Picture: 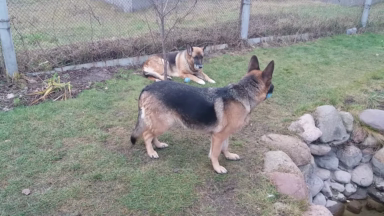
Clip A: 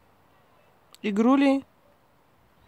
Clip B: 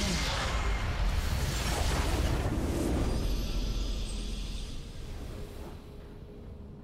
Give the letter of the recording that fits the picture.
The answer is A